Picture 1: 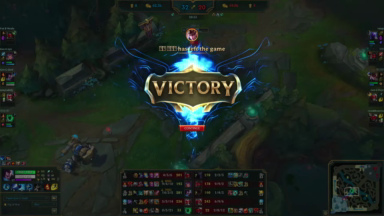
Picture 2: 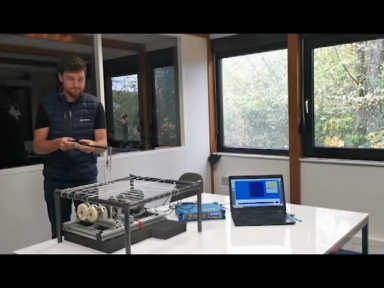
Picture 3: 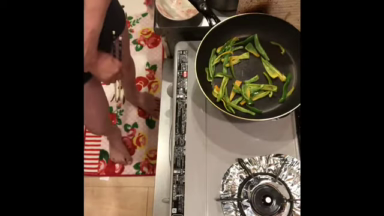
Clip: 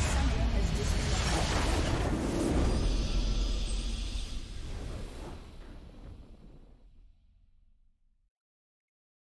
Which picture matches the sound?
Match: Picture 1